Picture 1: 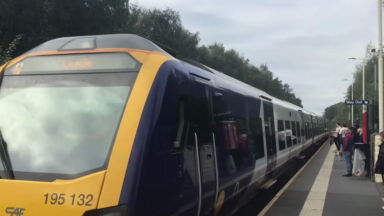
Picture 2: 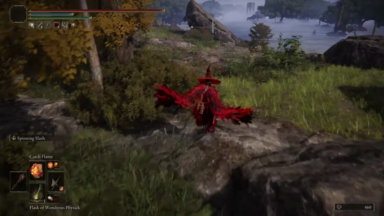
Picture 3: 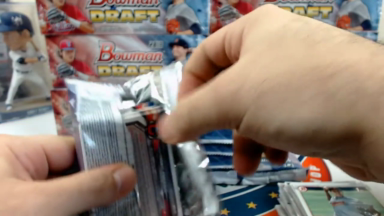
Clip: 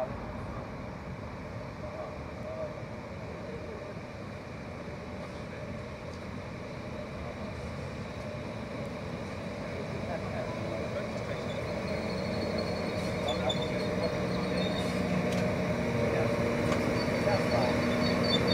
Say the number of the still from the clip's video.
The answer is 1